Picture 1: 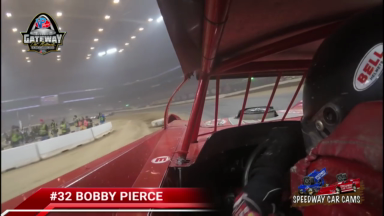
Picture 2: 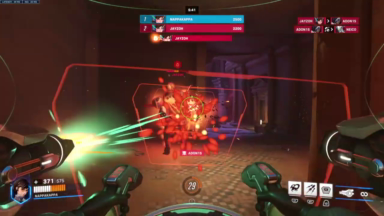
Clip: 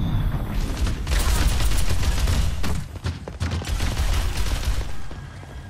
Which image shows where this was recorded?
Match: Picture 2